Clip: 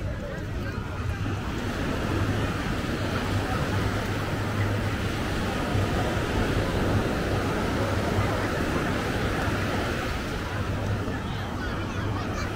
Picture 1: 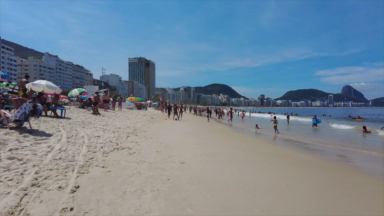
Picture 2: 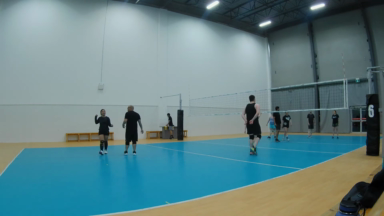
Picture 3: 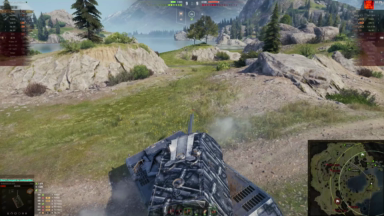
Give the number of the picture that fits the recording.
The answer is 1